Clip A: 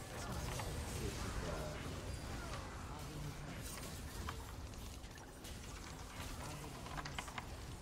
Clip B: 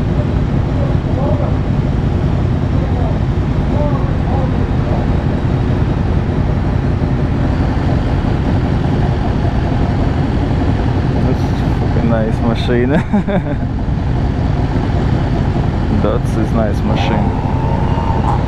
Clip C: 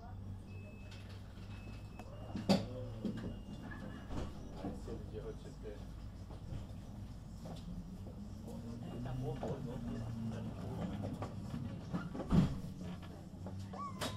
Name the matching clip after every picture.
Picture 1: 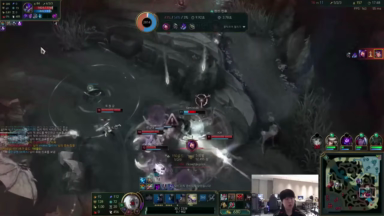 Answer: A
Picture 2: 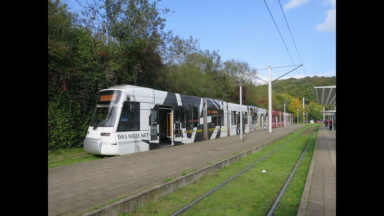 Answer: C